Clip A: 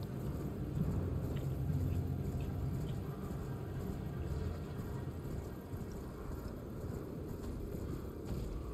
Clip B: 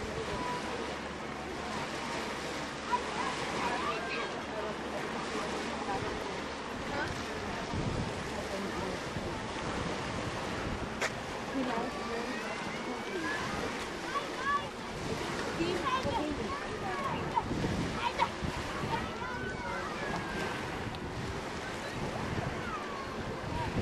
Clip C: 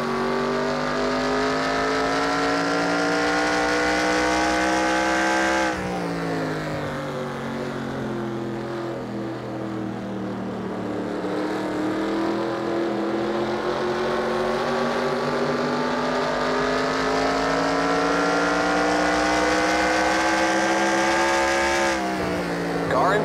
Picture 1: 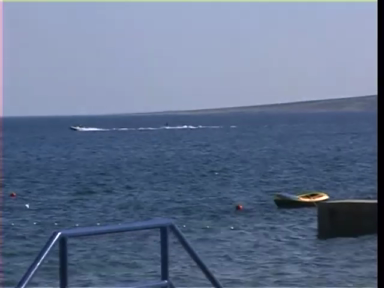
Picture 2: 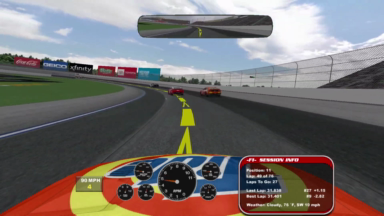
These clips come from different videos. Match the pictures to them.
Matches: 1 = B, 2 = C